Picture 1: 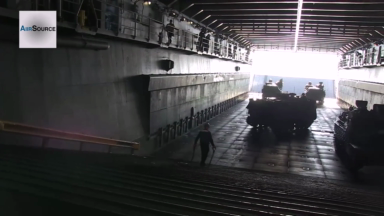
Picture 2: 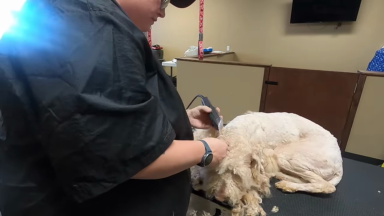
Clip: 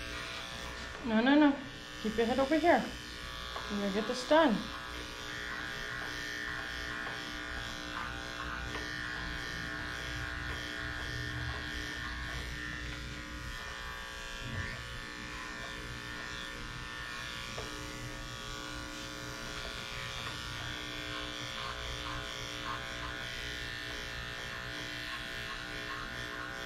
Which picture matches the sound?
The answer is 2